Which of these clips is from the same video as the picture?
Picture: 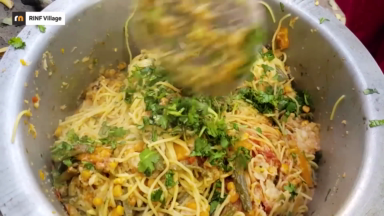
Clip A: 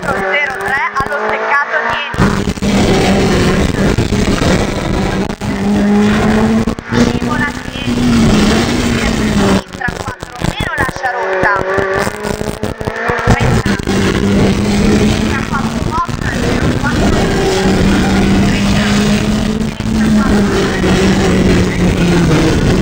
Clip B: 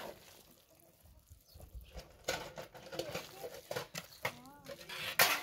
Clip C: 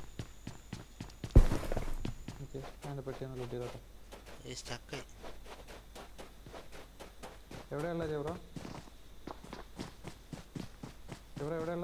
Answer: B